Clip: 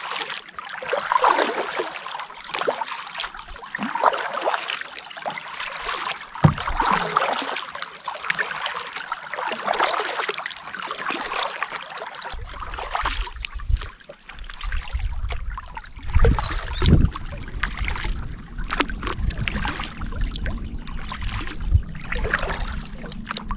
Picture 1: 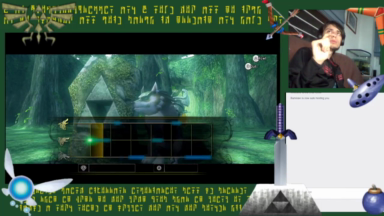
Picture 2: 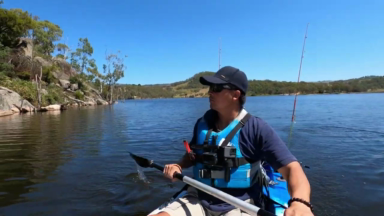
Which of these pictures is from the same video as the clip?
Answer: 2